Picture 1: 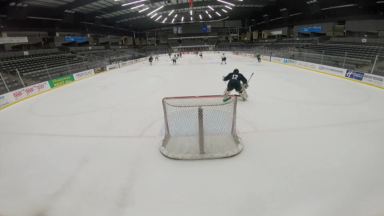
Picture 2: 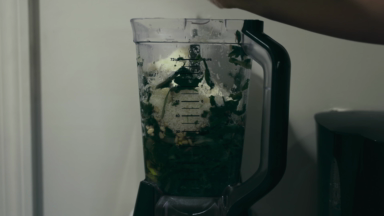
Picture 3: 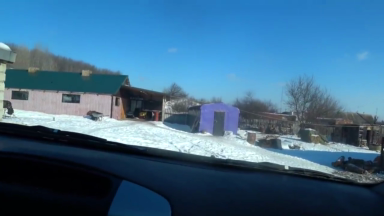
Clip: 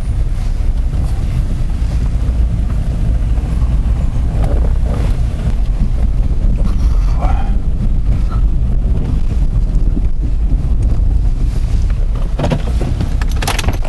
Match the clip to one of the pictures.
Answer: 3